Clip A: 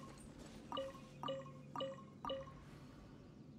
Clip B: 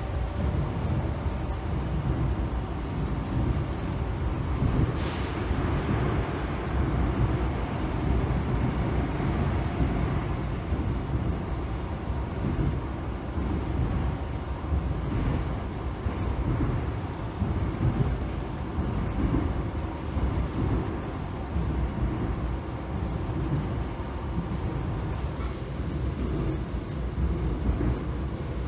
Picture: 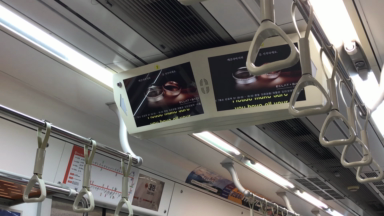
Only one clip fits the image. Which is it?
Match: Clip B